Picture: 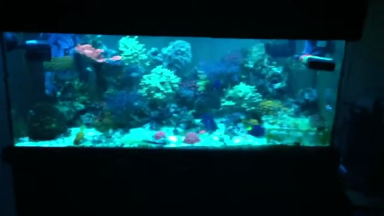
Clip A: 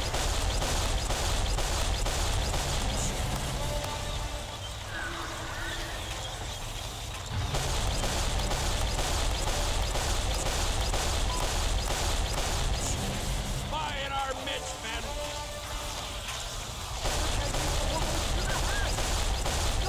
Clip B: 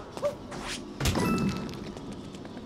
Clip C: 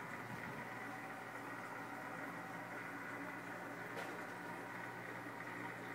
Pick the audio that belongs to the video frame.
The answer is C